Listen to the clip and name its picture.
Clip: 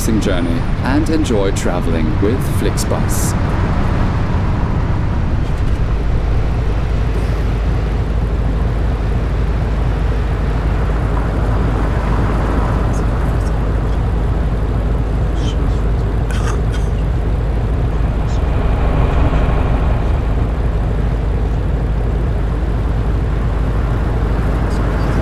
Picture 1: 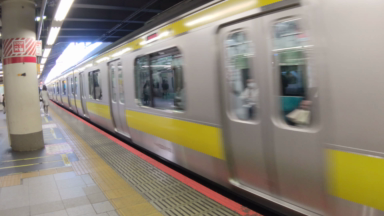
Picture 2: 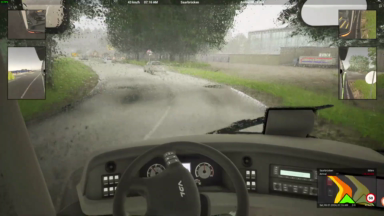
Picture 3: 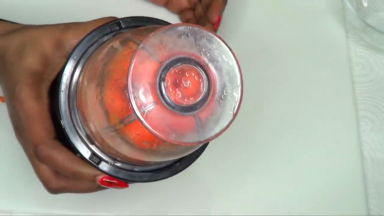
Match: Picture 2